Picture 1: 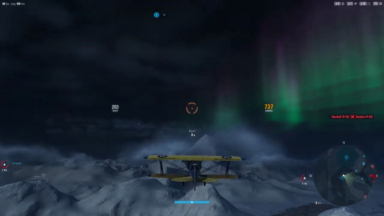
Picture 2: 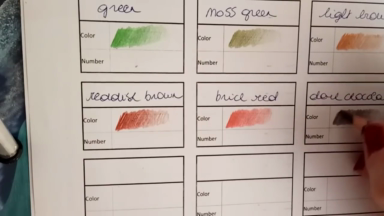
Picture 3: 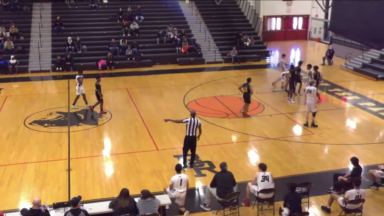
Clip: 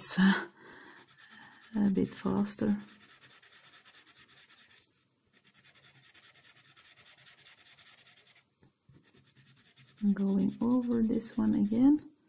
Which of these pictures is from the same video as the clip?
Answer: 2